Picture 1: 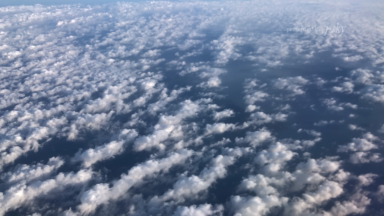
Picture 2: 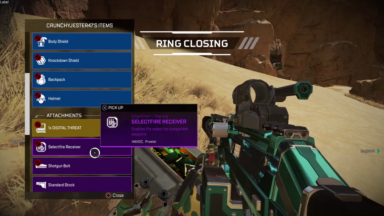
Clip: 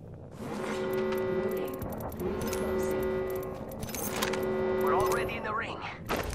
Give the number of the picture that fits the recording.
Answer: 2